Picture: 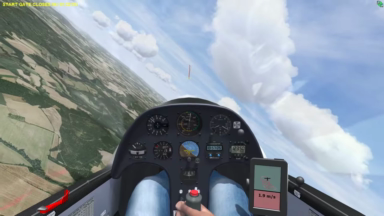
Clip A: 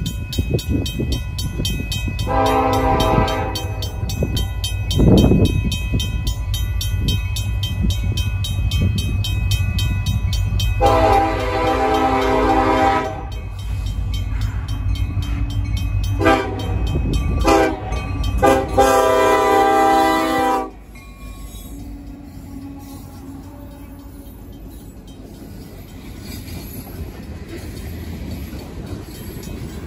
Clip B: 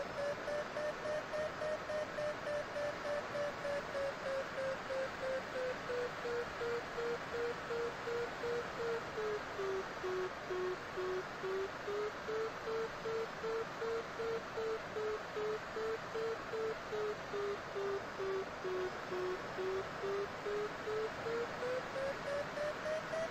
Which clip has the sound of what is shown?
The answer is B